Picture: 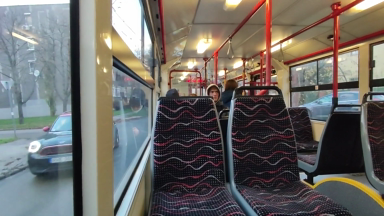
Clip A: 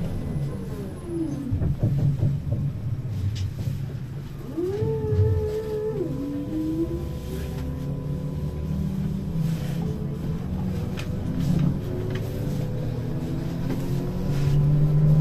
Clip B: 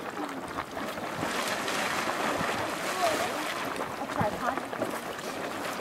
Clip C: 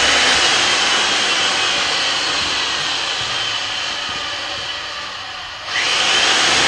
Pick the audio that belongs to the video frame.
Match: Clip A